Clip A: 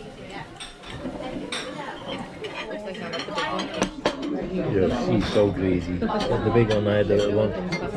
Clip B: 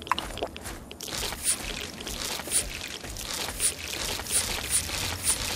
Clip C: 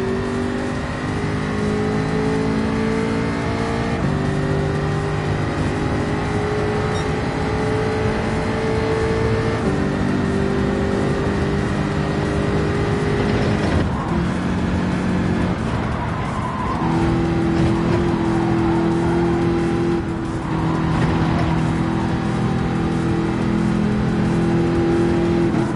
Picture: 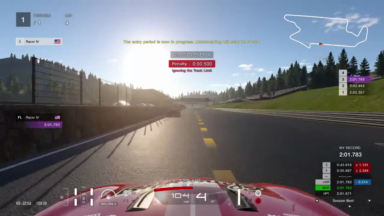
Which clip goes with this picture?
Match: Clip C